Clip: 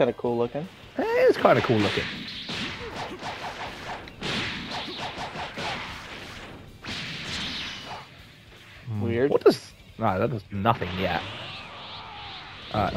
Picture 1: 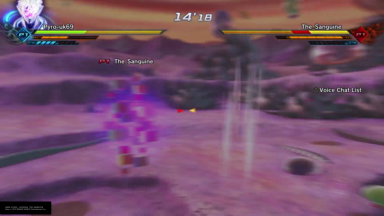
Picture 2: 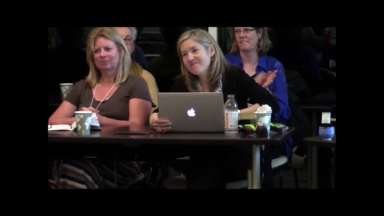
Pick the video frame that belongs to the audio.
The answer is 1